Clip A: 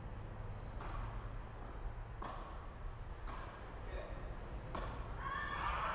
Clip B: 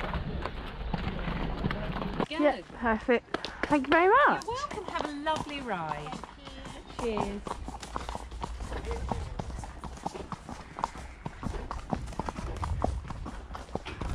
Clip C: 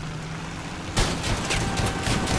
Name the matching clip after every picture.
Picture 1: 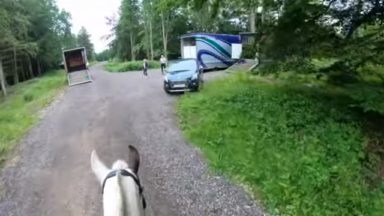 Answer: B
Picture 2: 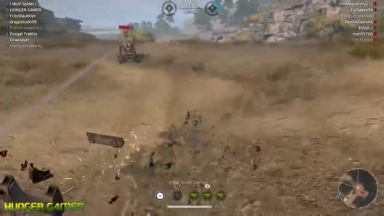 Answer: C